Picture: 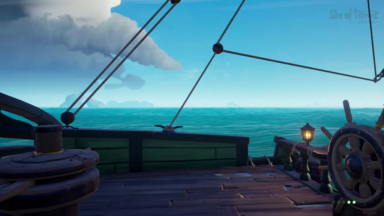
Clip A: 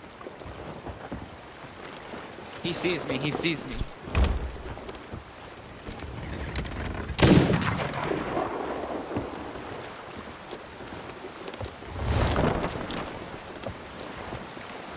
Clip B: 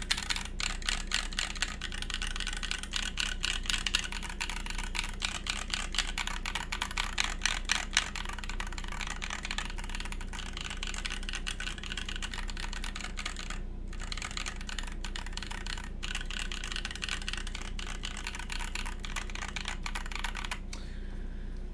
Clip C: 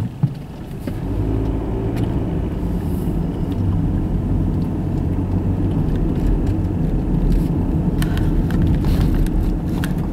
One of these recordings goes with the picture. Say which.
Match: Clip A